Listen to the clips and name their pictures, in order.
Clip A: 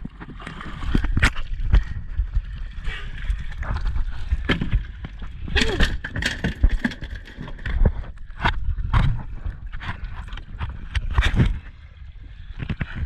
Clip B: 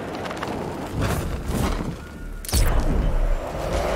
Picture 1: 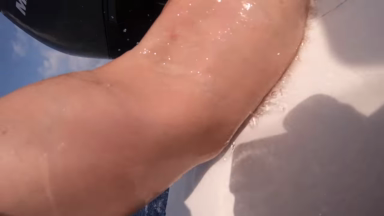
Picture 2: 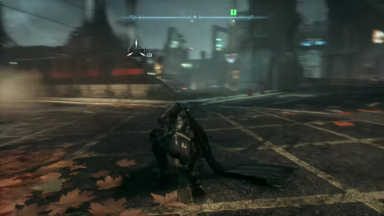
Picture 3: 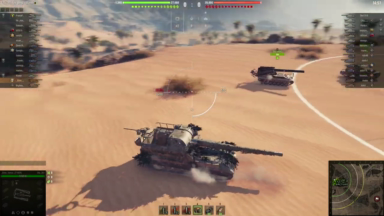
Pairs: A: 1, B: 2